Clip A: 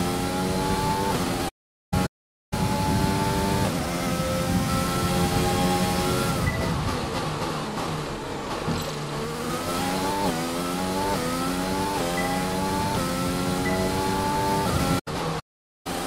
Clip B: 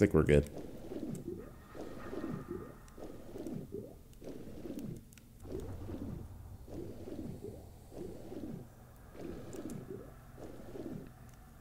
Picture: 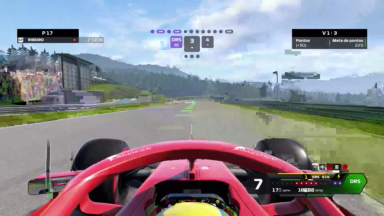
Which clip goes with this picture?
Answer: A